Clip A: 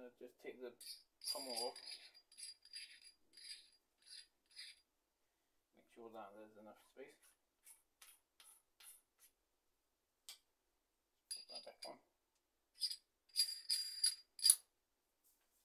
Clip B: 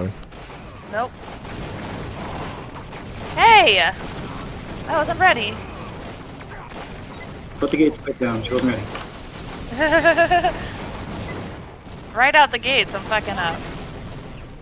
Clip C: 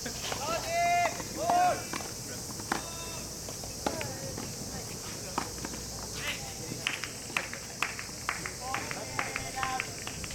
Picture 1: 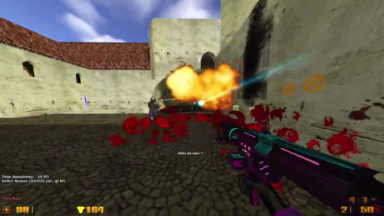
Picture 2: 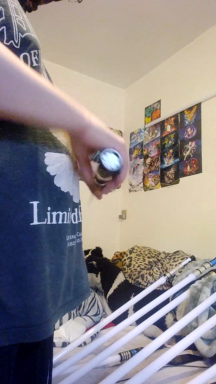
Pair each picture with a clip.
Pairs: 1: B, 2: A